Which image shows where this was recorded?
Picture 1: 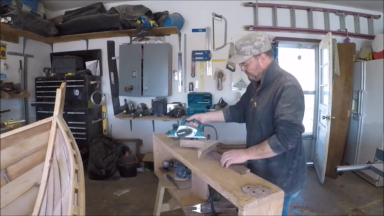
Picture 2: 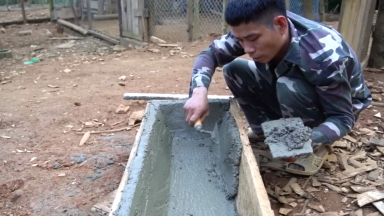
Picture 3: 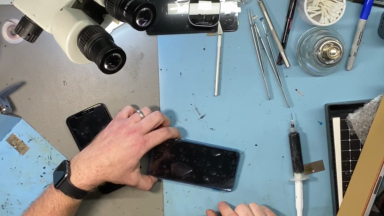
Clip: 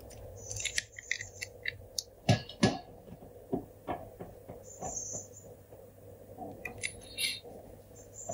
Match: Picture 3